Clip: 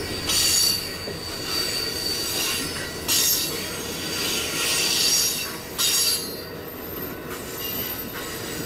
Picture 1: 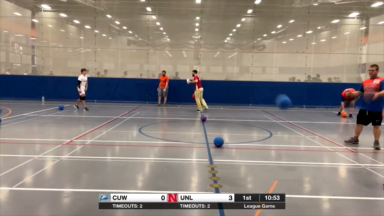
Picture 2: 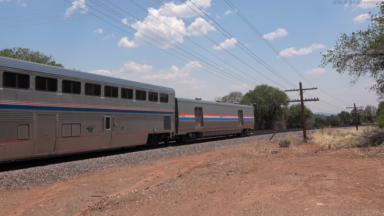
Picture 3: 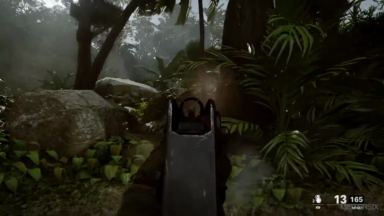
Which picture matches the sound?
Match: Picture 2